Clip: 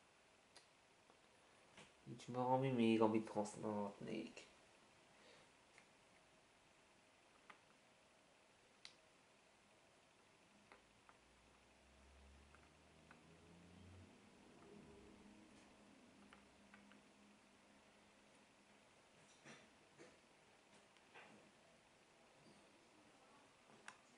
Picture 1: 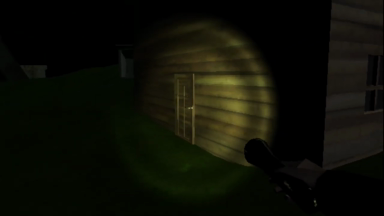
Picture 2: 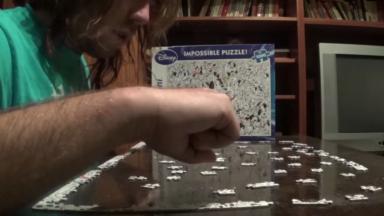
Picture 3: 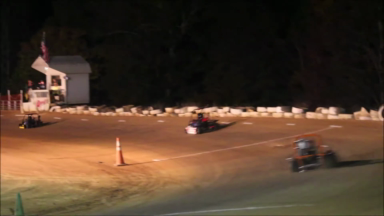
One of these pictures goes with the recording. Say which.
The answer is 2